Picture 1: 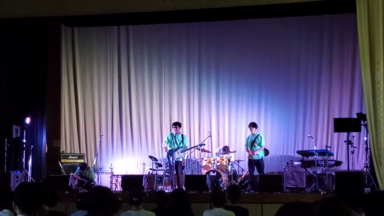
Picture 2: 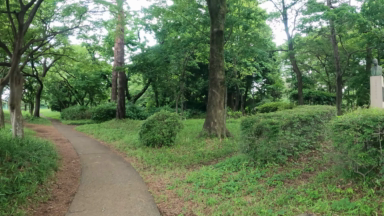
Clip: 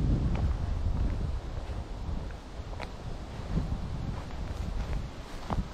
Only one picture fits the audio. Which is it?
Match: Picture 2